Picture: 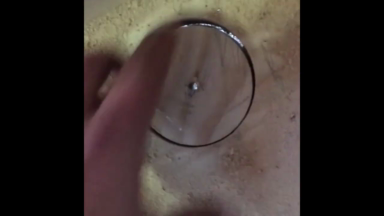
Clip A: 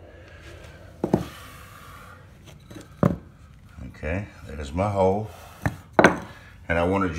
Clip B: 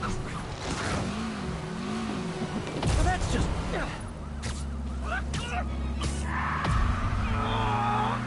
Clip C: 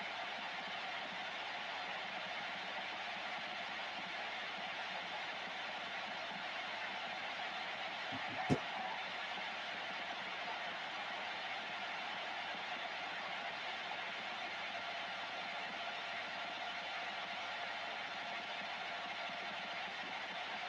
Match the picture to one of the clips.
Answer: A